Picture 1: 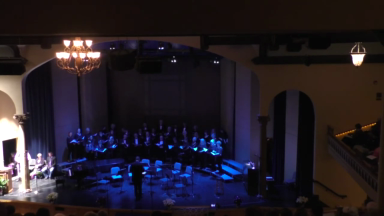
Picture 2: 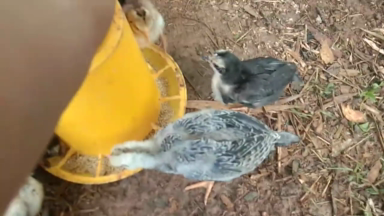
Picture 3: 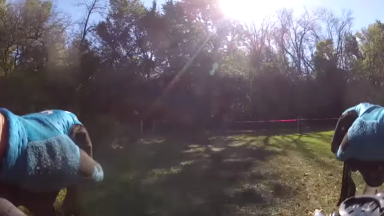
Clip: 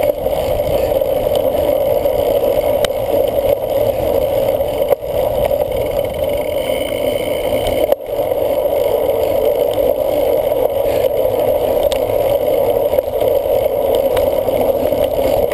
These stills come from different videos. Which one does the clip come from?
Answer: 3